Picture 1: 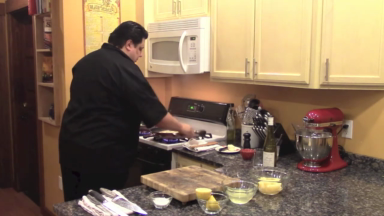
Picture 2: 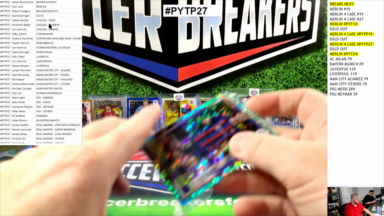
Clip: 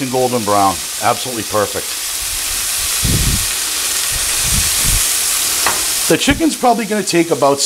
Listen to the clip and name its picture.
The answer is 1